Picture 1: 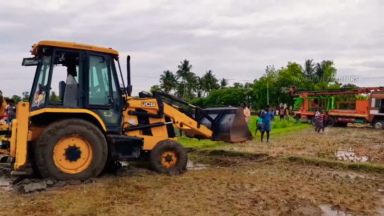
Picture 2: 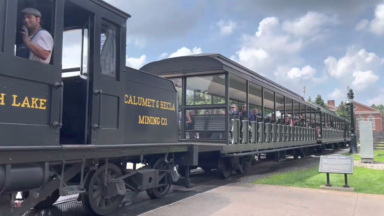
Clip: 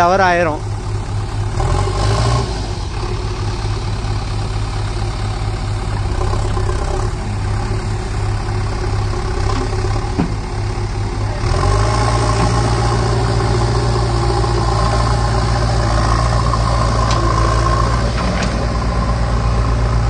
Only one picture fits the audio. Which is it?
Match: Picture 1